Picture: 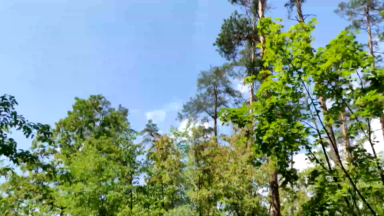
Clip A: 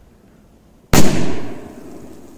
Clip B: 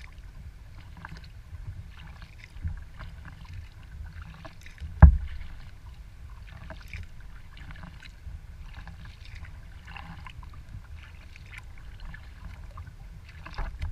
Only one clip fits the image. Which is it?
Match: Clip A